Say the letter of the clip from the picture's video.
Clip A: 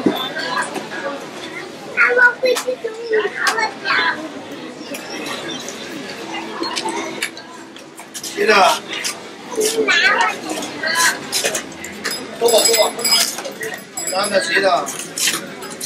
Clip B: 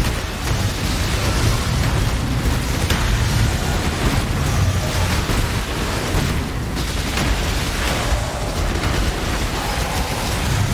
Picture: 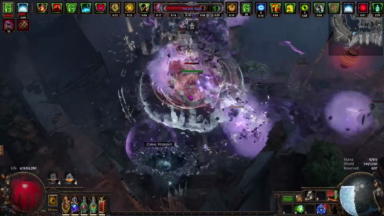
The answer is B